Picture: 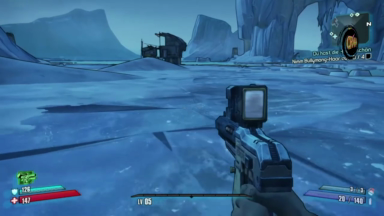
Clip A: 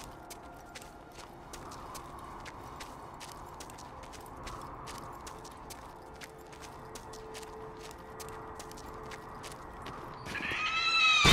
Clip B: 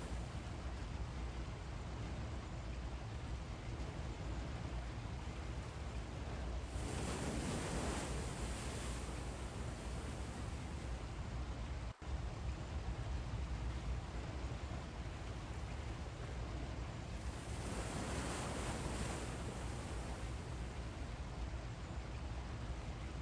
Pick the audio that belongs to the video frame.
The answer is A